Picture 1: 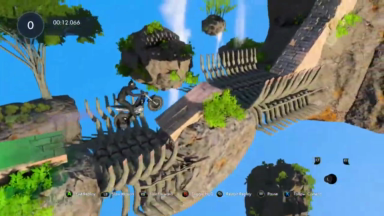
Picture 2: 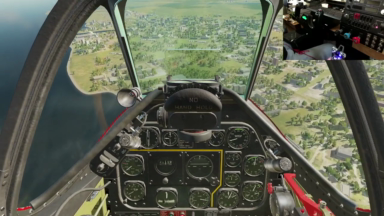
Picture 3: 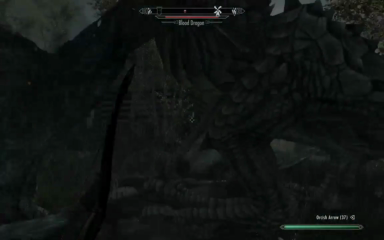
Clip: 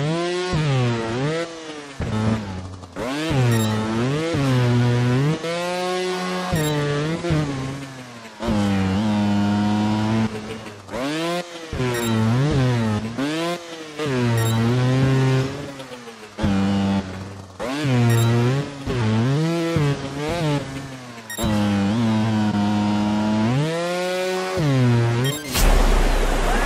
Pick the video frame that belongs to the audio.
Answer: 1